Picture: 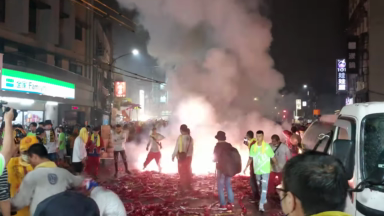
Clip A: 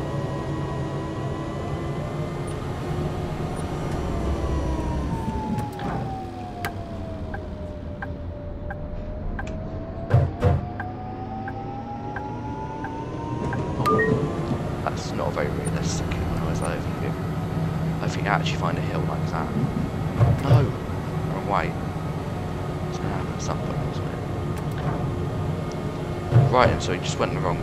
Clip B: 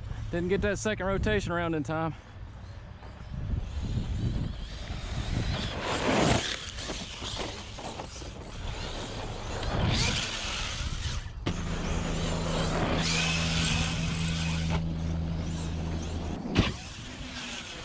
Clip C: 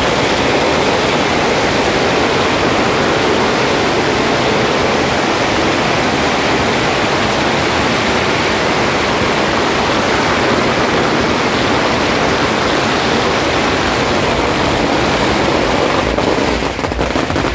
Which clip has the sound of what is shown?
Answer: C